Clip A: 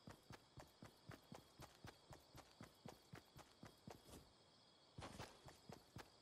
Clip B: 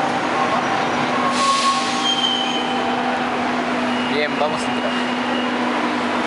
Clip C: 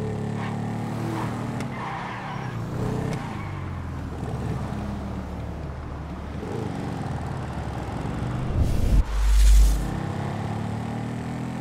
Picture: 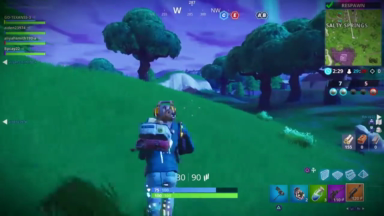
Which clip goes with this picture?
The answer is A